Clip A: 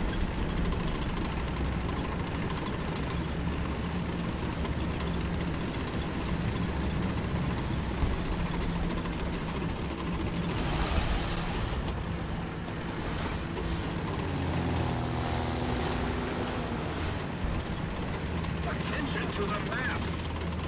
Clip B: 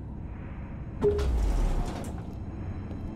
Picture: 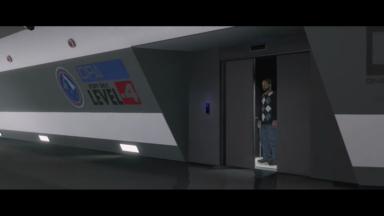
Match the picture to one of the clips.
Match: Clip B